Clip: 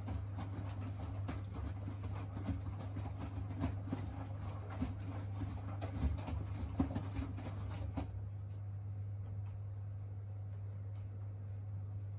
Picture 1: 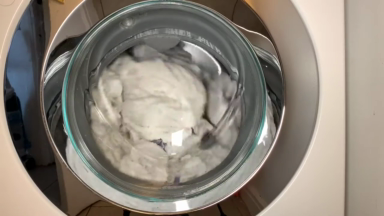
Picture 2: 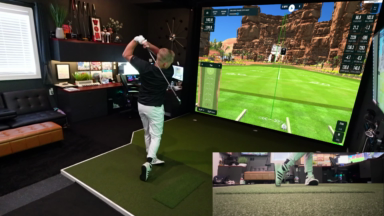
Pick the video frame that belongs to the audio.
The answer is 1